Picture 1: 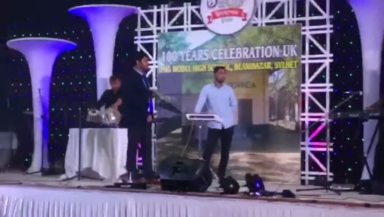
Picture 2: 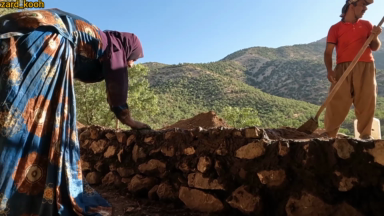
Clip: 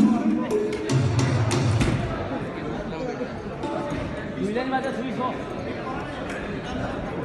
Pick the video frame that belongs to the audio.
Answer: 1